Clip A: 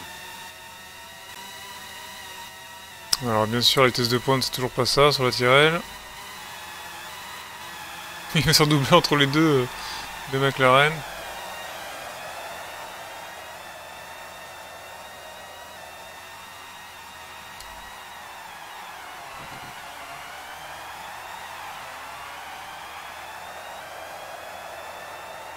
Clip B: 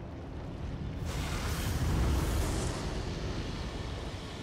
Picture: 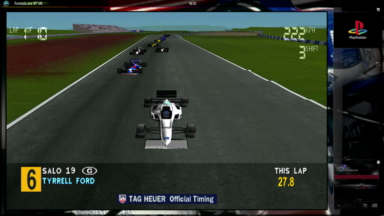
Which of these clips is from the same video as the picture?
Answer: A